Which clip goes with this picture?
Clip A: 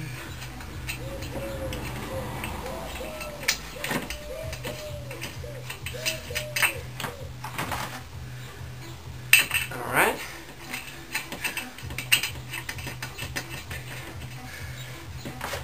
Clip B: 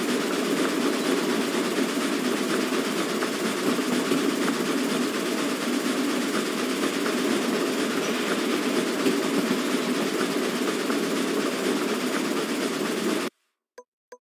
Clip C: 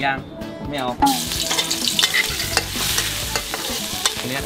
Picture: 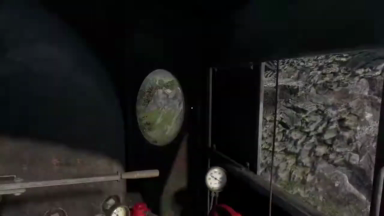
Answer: B